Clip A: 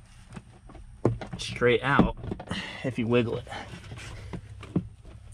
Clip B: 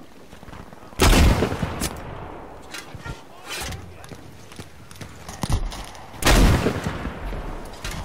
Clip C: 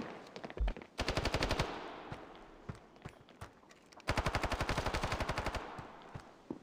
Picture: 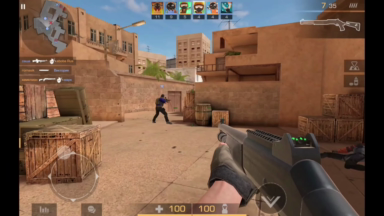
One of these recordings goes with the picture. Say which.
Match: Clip C